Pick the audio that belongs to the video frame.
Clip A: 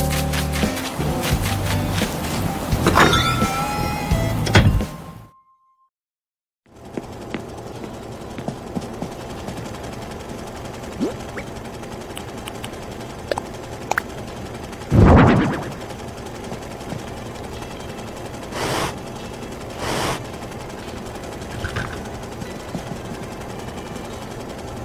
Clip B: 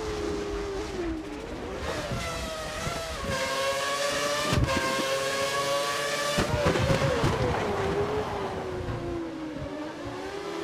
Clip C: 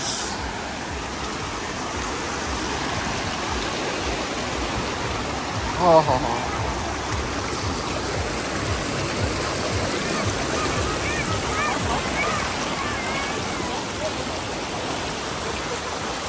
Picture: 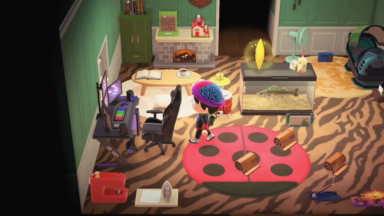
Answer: A